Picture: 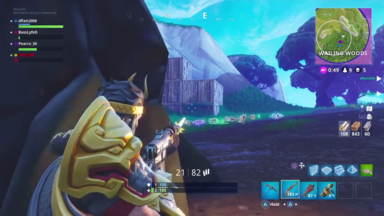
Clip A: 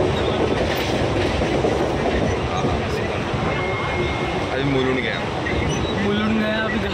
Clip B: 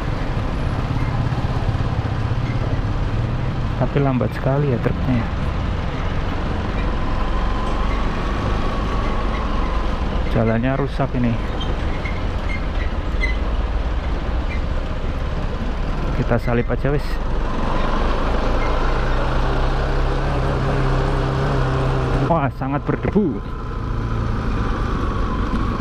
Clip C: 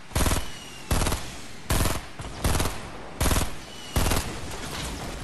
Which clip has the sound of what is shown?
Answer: C